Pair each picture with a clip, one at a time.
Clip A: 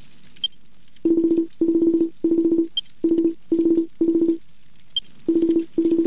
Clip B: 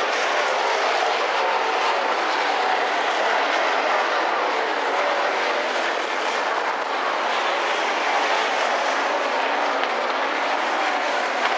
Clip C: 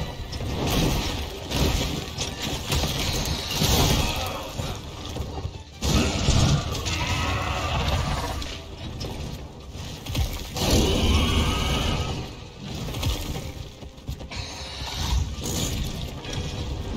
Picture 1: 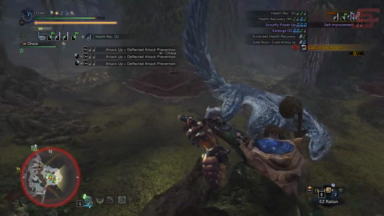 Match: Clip C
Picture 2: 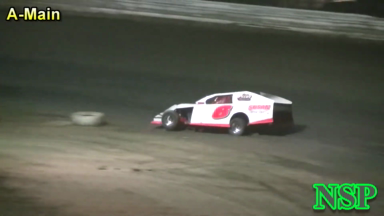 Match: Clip B